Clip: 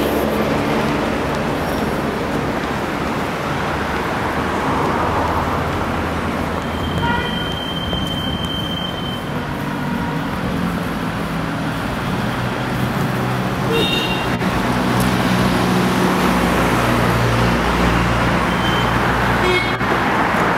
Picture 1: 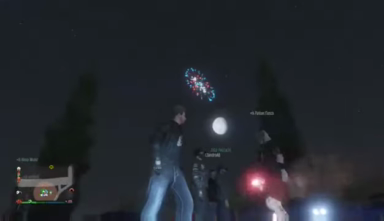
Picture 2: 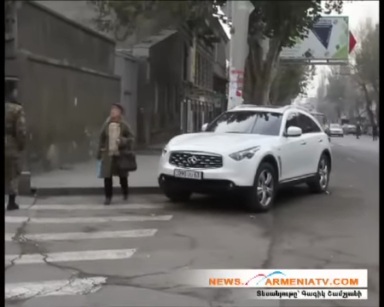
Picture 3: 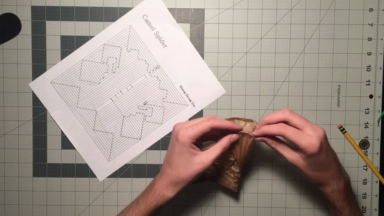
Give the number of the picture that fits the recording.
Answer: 2